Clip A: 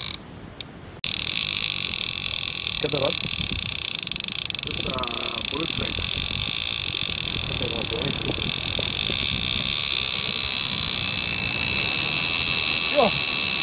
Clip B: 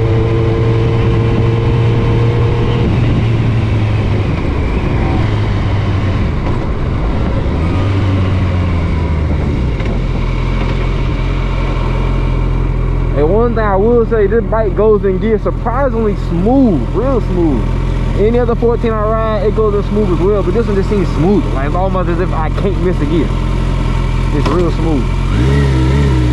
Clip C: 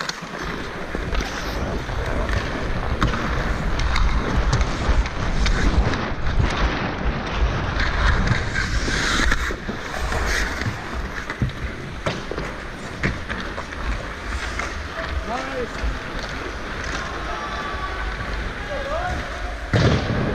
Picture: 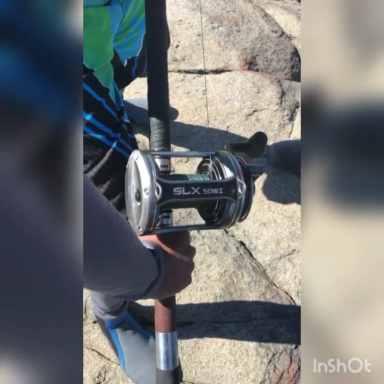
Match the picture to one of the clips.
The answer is A